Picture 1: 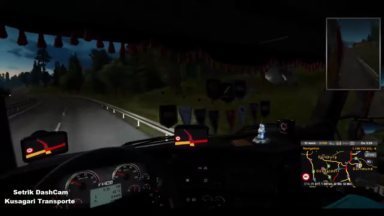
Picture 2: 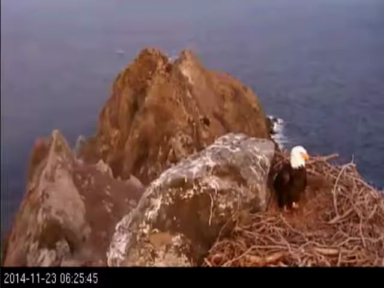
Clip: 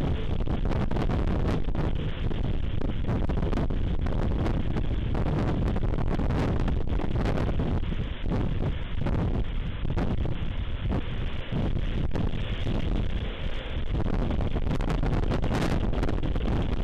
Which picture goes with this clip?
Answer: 2